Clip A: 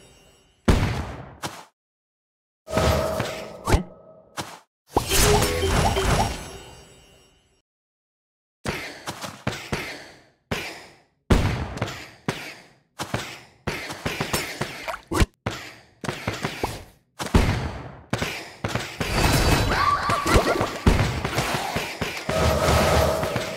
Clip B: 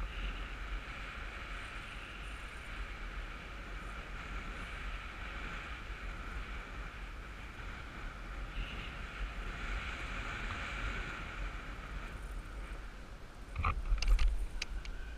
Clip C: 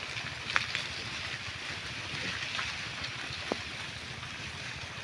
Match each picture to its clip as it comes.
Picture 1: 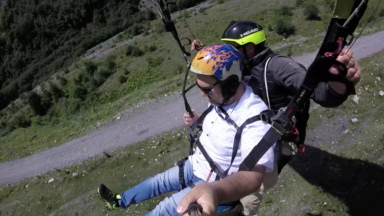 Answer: B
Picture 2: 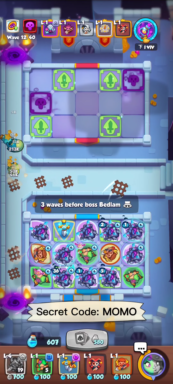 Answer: A